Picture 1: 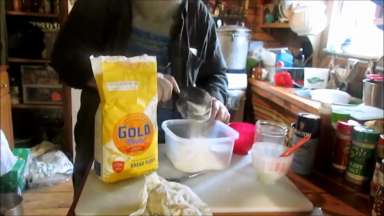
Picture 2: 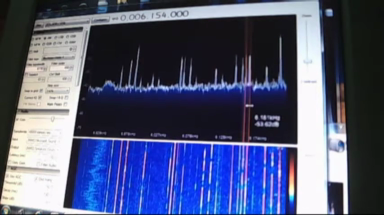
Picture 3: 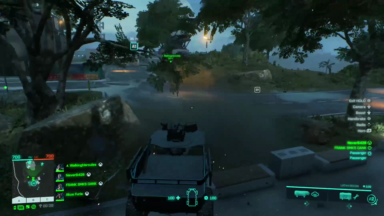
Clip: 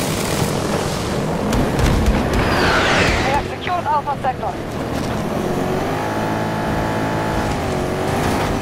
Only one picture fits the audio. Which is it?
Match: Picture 3